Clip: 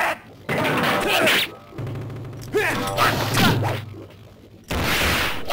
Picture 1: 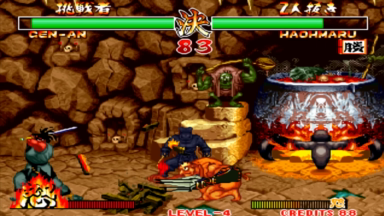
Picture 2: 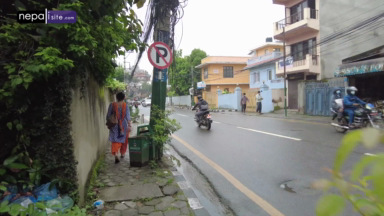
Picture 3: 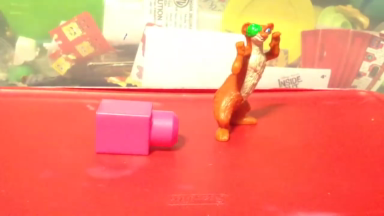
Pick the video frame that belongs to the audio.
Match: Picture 1